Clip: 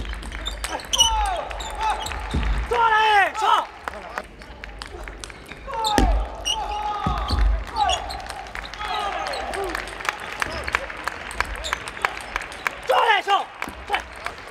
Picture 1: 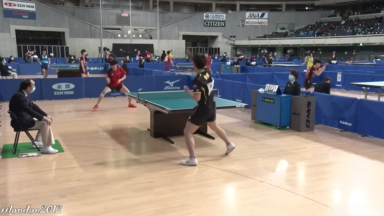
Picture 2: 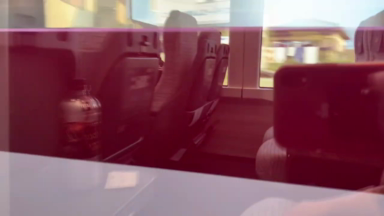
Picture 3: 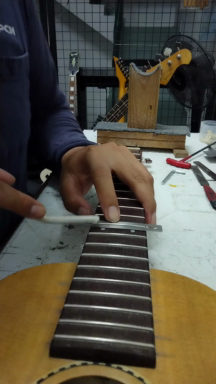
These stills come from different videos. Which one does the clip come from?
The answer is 1